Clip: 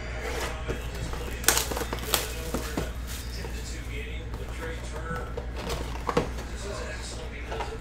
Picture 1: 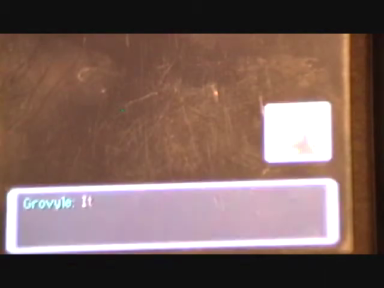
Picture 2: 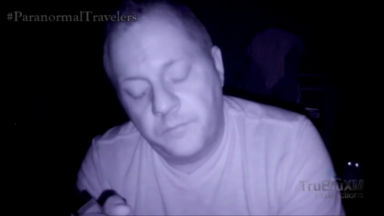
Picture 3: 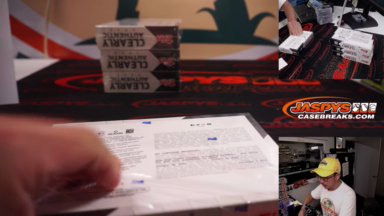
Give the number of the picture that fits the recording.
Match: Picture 3